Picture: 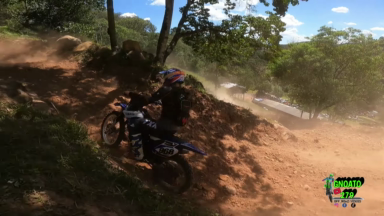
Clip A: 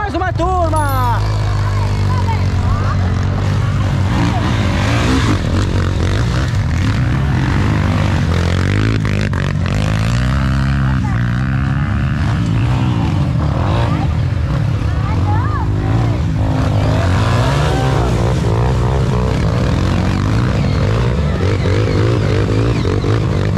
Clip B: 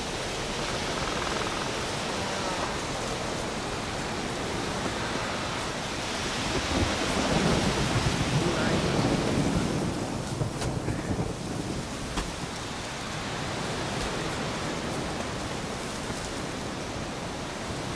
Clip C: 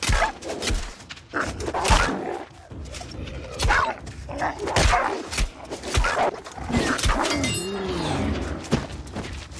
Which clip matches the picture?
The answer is A